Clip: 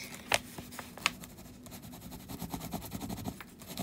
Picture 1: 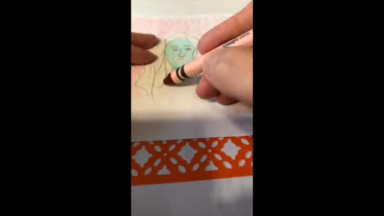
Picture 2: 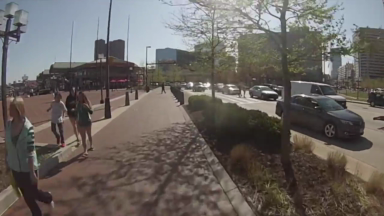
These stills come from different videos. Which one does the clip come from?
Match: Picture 1